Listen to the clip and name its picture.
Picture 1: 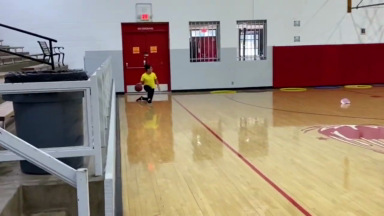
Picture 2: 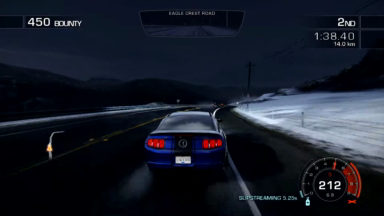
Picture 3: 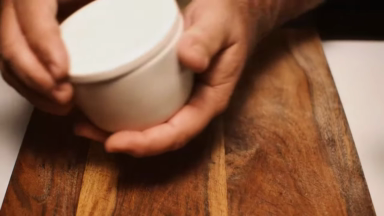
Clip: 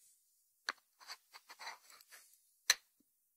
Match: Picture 3